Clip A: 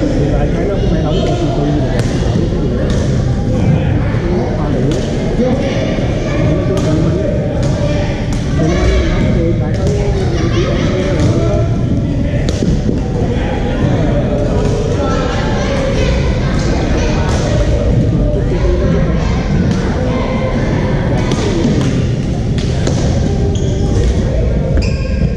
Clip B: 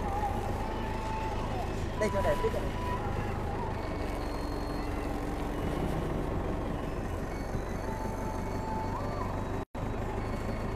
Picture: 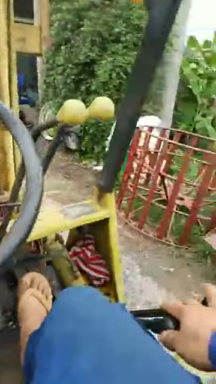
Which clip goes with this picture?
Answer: B